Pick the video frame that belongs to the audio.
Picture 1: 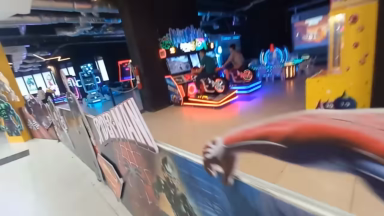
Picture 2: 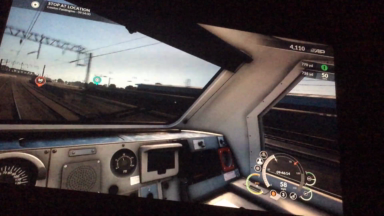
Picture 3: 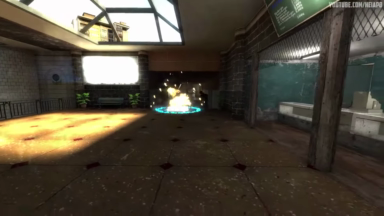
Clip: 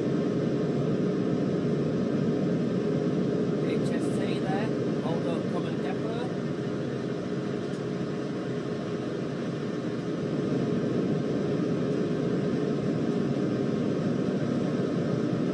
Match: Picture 2